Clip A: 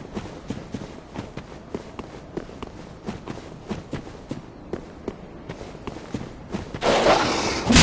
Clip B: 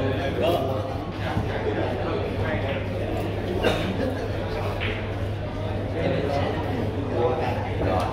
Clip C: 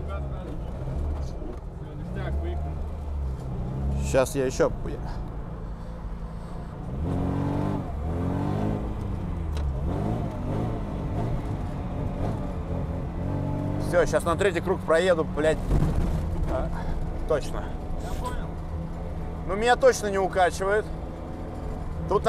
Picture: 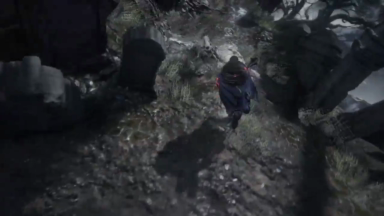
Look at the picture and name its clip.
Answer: A